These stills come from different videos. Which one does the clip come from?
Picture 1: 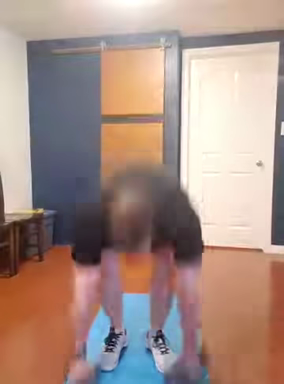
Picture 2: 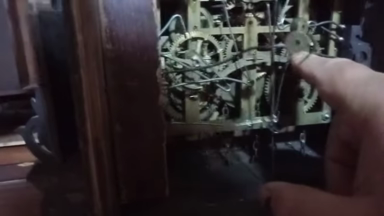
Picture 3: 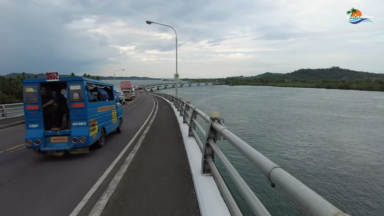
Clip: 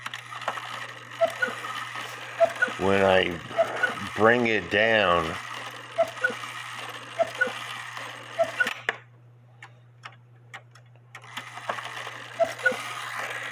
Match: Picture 2